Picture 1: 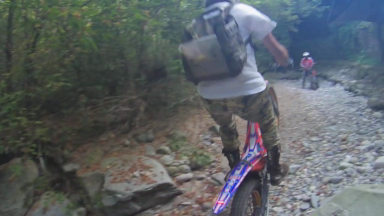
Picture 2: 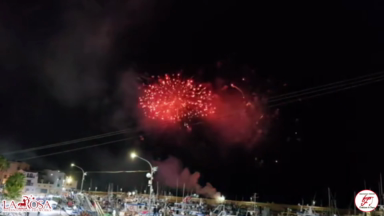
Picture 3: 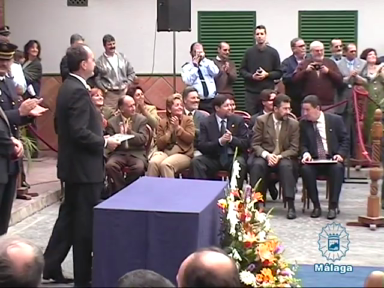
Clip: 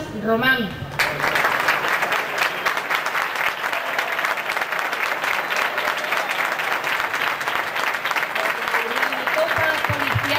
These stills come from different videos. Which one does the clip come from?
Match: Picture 3